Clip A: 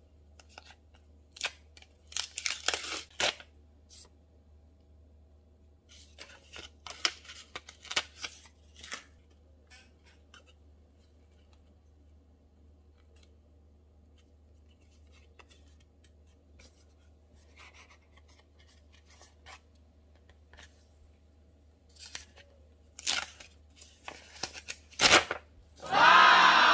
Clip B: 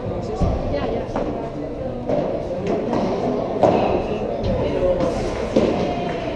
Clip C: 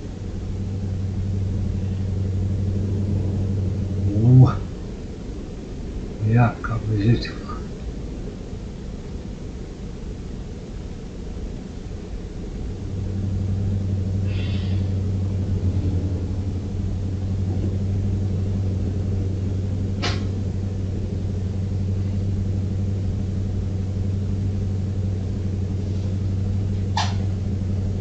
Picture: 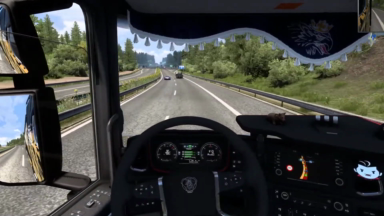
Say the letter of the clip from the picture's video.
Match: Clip C